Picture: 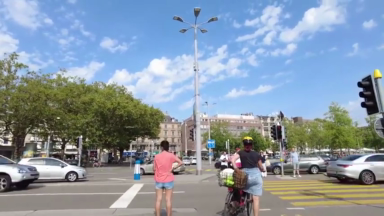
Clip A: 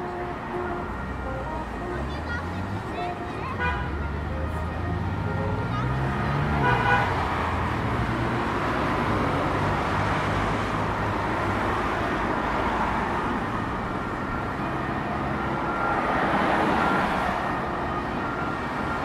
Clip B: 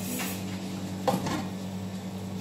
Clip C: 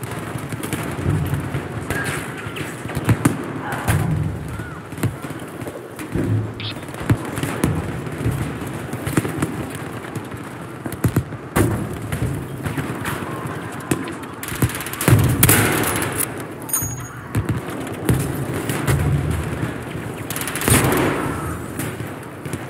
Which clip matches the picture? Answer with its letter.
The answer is A